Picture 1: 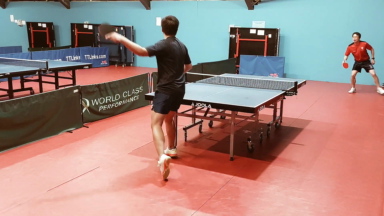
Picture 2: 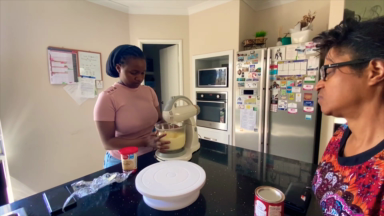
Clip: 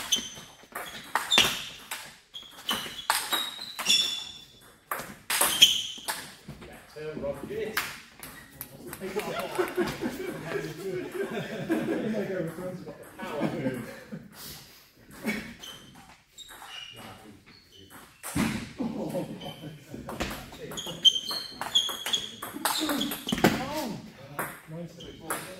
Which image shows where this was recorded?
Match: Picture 1